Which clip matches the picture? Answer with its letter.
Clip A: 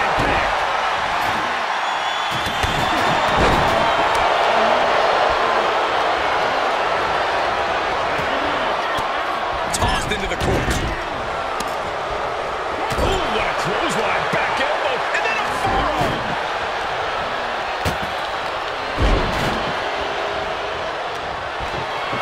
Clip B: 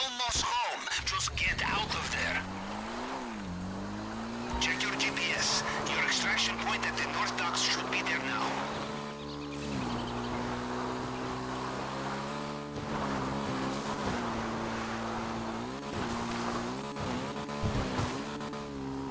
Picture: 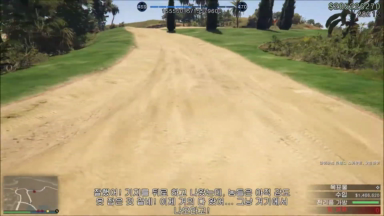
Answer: B